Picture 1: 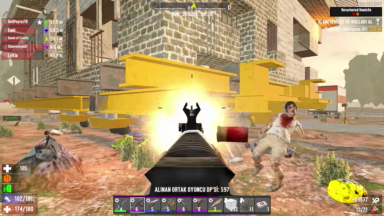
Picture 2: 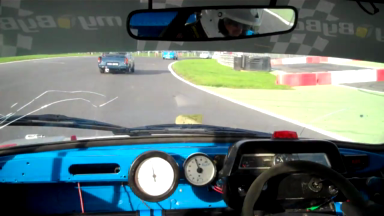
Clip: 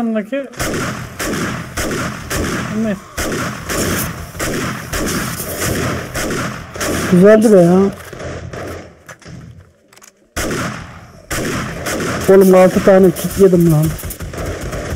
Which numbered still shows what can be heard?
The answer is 1